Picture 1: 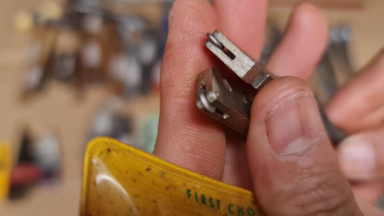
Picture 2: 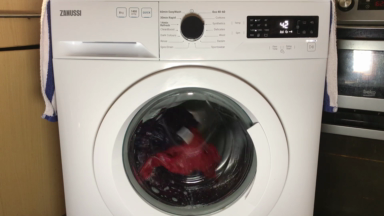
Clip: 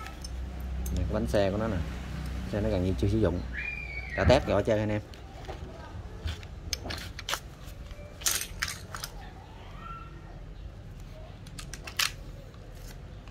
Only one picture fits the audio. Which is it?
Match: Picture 1